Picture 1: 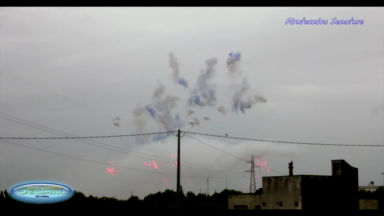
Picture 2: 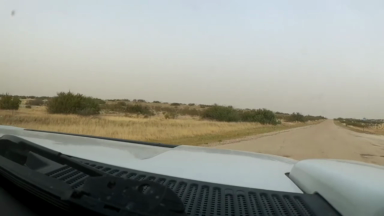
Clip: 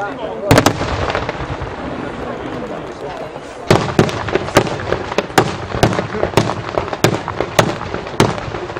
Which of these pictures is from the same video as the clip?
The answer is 1